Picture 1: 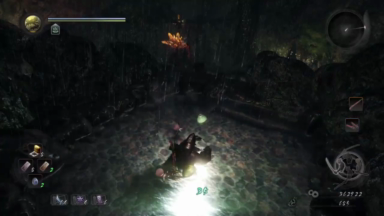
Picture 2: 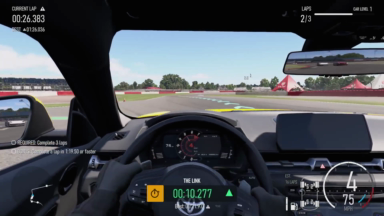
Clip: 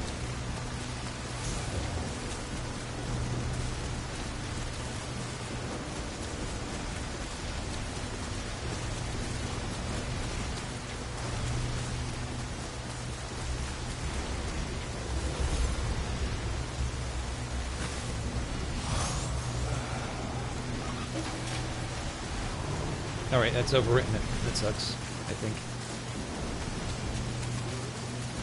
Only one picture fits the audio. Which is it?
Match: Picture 1